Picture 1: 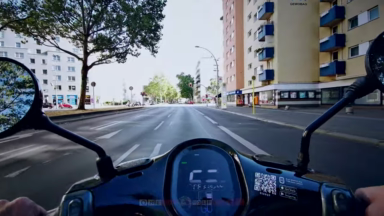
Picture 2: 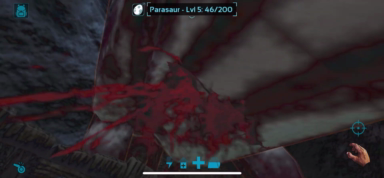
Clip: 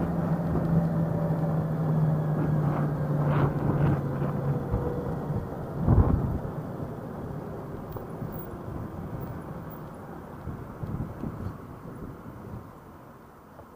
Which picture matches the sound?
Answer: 1